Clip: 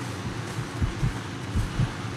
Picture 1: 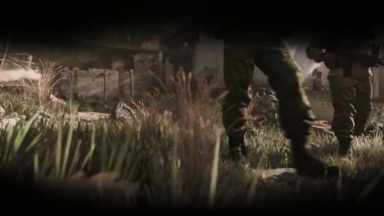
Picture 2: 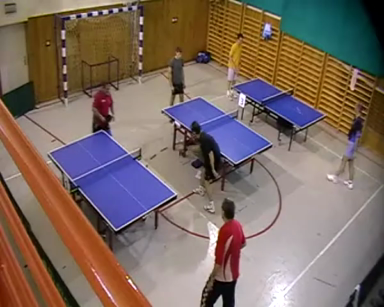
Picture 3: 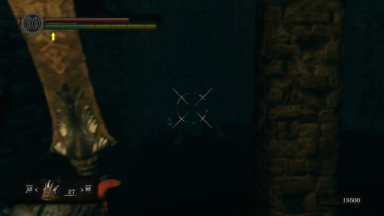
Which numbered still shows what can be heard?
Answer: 1